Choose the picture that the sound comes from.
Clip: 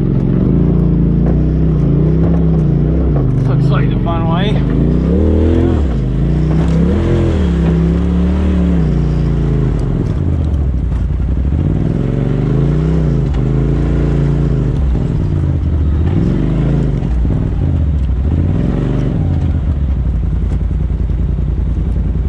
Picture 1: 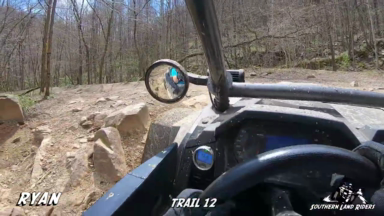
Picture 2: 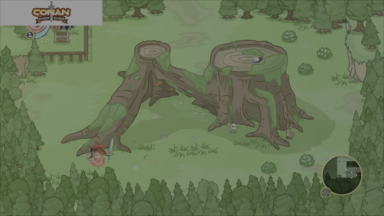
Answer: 1